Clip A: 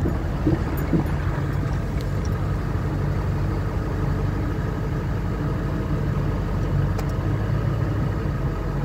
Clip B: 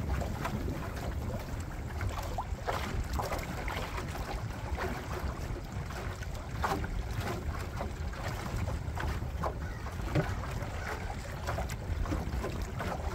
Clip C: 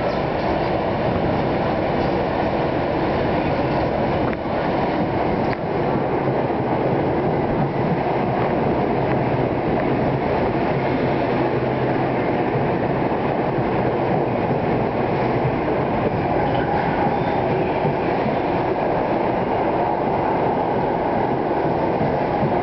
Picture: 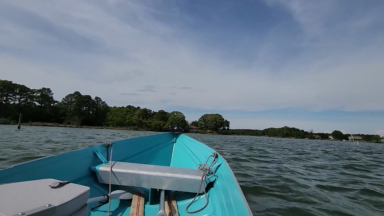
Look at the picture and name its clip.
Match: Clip B